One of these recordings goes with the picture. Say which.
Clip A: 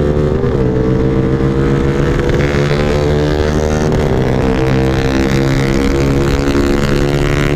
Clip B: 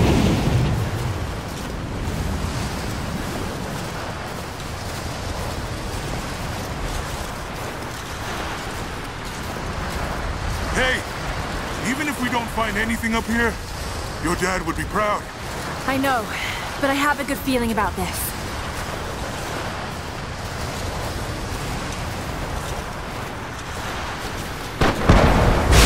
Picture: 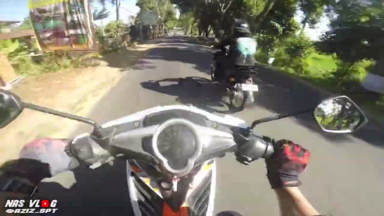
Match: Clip A